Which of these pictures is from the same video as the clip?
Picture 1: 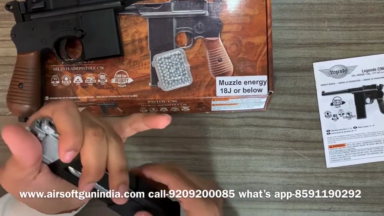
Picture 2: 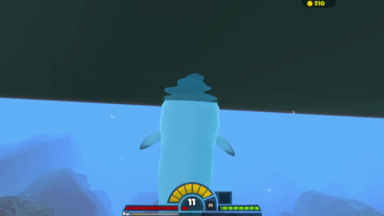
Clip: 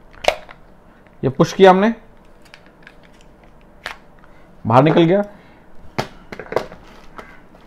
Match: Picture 1